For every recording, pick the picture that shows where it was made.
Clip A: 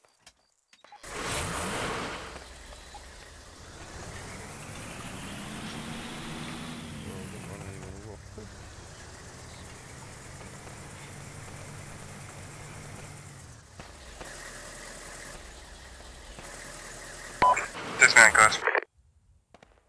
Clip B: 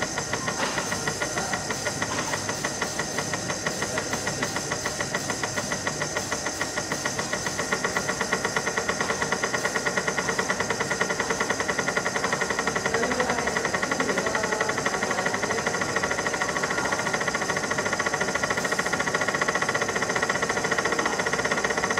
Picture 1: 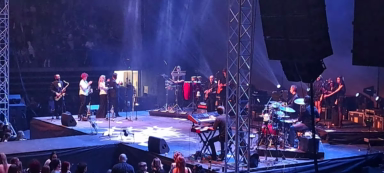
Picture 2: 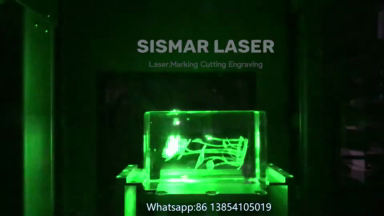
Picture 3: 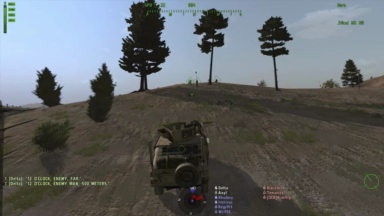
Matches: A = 3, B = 2